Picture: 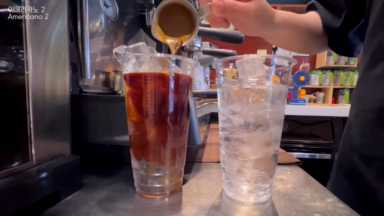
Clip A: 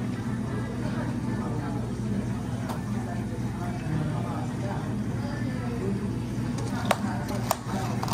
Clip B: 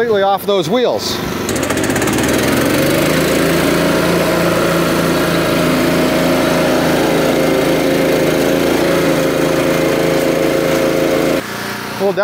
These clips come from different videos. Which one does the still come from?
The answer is A